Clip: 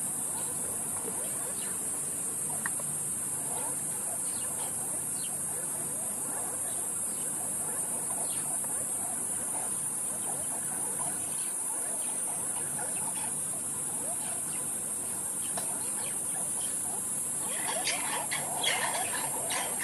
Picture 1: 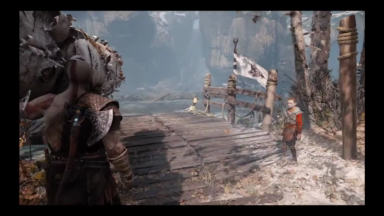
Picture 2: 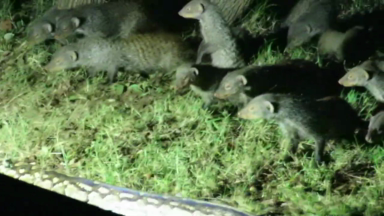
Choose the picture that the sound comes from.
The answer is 2